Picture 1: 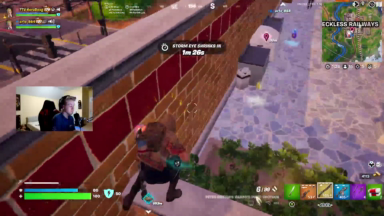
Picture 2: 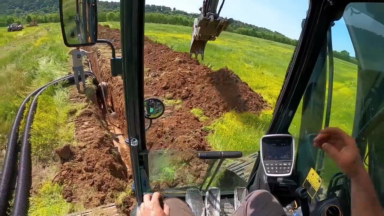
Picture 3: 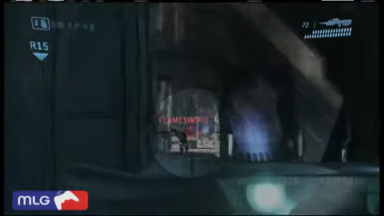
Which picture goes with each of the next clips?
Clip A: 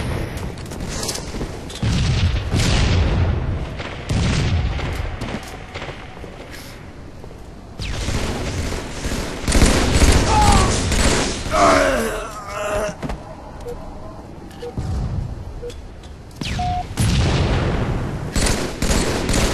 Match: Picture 3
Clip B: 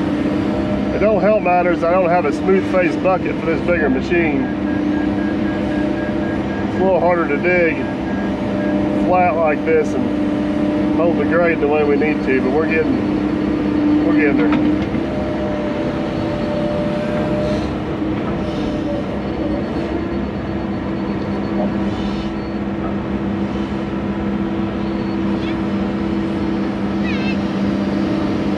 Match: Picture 2